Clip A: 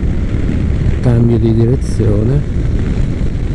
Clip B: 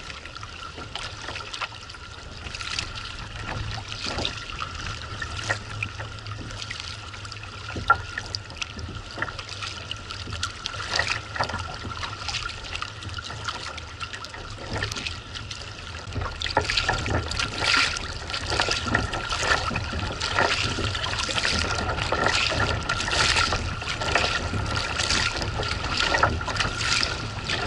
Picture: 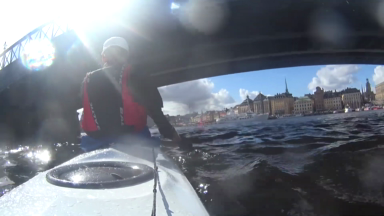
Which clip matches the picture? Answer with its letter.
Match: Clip B